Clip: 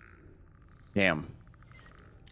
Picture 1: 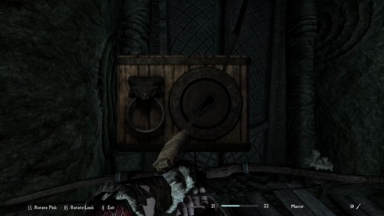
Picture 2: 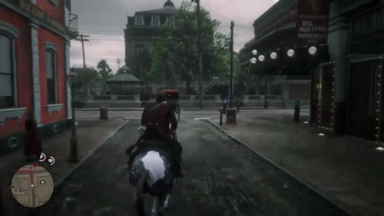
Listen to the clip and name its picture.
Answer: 1